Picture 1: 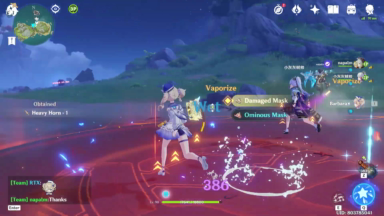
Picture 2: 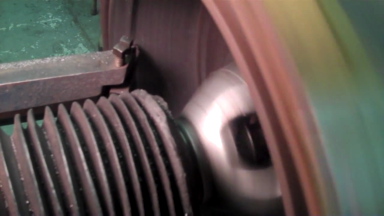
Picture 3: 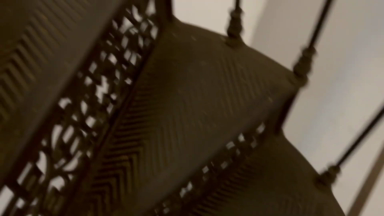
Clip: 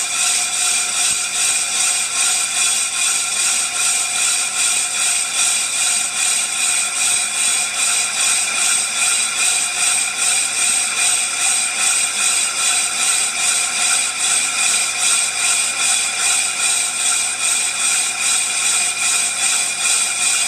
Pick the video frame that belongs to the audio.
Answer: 2